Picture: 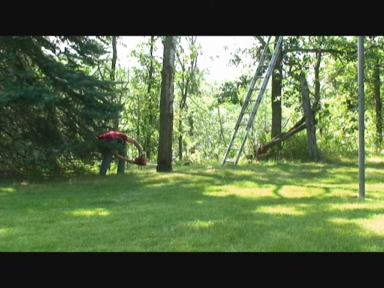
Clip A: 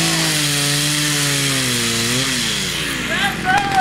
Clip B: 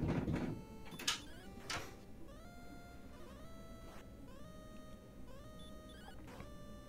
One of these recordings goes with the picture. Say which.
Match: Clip A